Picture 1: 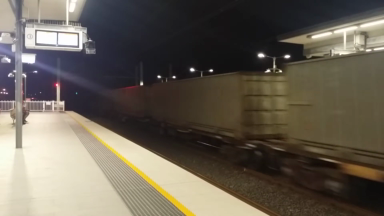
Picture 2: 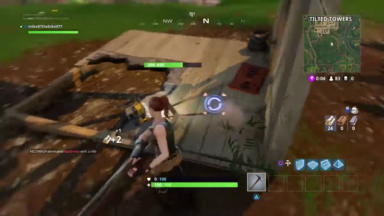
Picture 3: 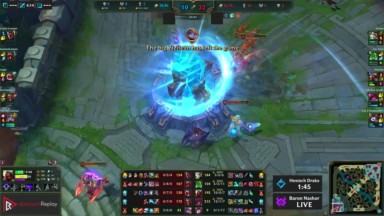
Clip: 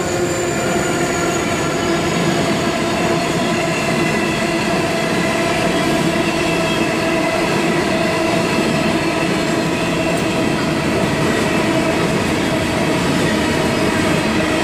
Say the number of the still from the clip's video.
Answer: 1